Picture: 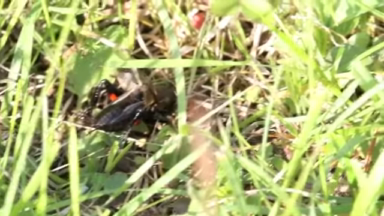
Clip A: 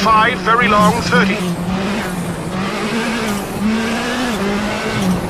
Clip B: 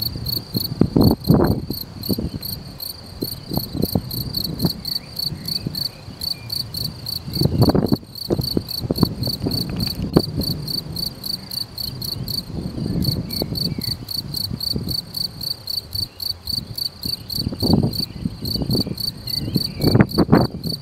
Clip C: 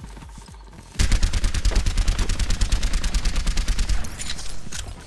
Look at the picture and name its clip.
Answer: B